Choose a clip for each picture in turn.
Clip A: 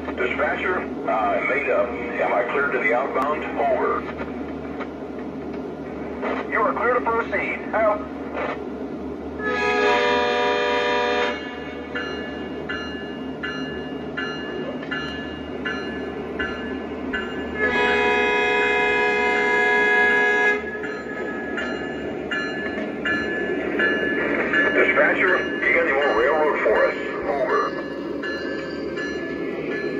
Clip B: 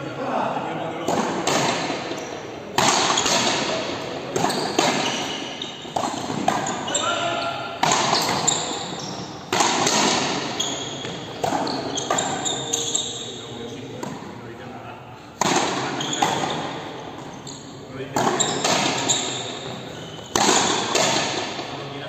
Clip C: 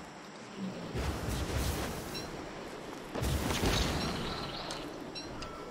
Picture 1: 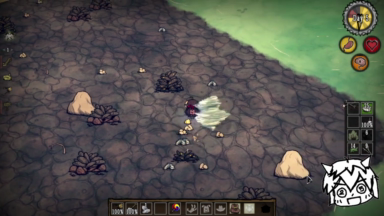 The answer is C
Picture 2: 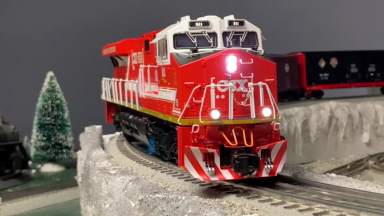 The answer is A